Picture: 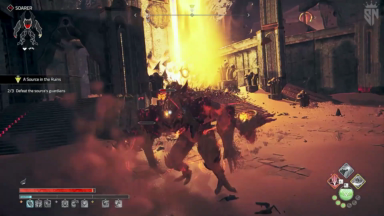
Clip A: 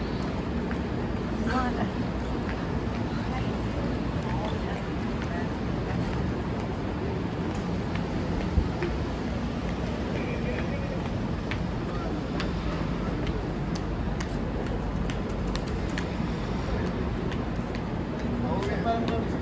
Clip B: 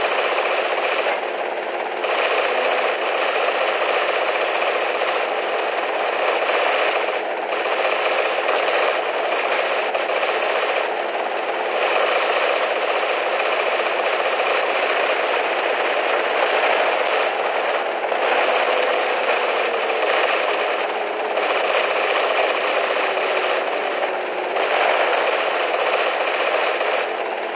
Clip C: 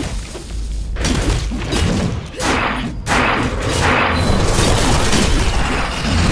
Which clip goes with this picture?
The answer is C